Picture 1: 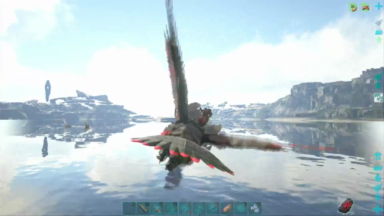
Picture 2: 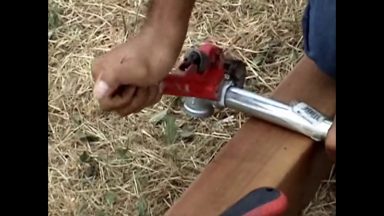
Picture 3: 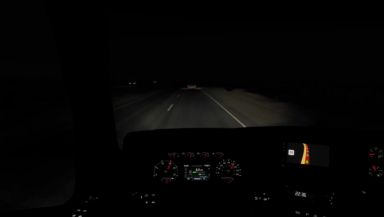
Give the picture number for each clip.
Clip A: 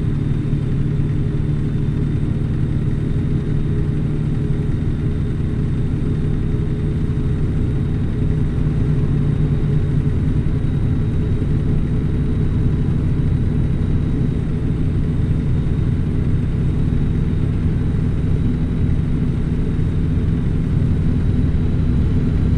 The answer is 3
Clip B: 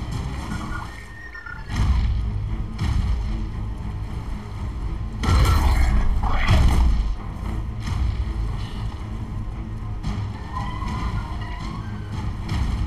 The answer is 1